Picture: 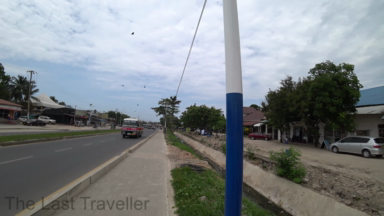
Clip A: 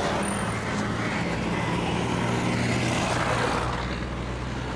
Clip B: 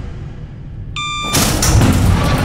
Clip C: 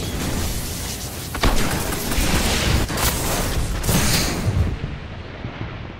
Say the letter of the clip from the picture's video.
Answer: A